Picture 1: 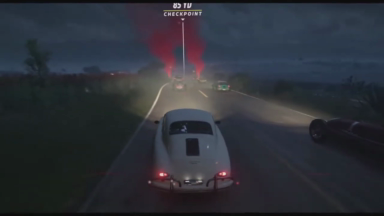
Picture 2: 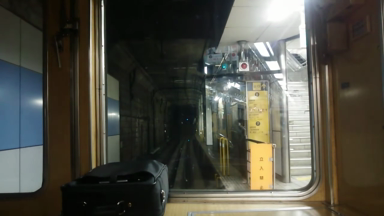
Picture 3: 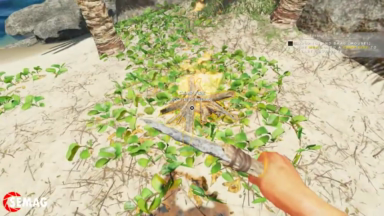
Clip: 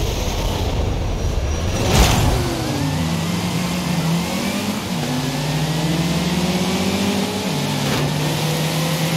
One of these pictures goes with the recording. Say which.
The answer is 1